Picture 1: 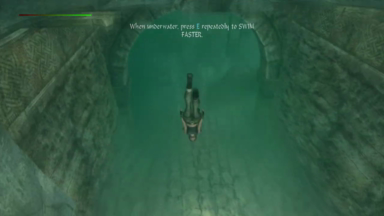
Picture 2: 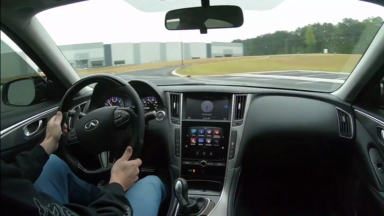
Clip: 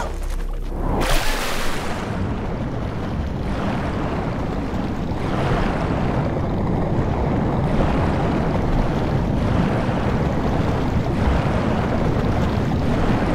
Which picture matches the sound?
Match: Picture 1